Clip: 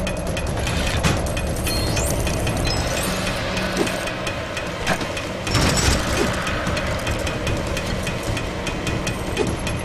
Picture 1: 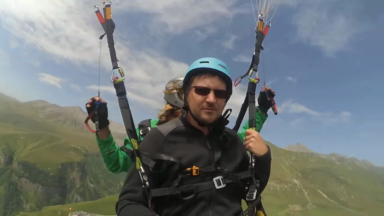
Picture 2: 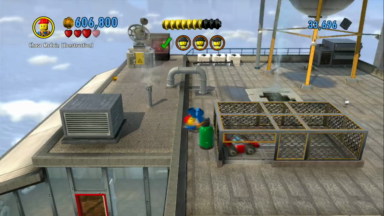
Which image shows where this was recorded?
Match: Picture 2